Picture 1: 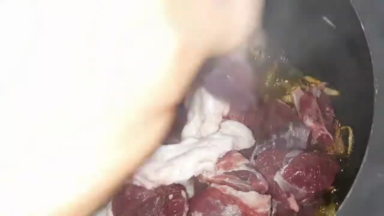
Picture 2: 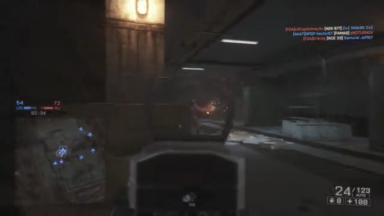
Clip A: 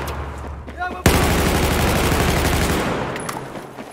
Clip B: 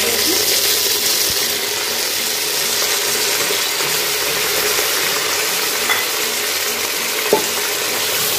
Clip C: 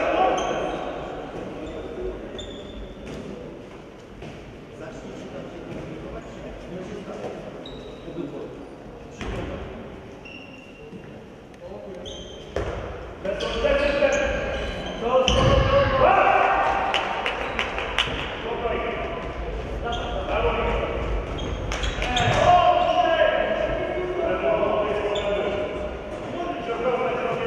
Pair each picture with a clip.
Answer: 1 B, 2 A